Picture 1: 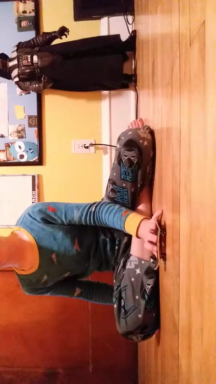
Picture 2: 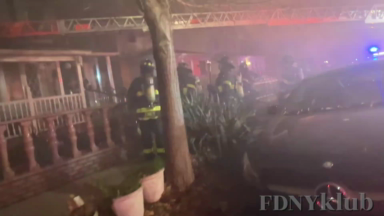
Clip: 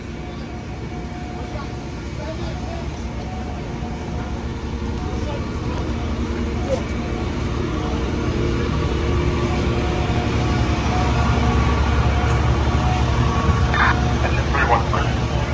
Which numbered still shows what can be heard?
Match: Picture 2